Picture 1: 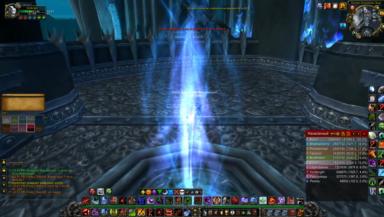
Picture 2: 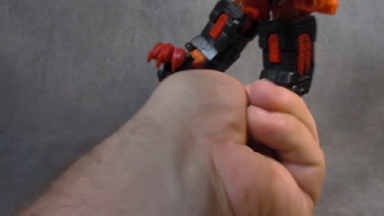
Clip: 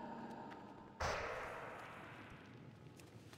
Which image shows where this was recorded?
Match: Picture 1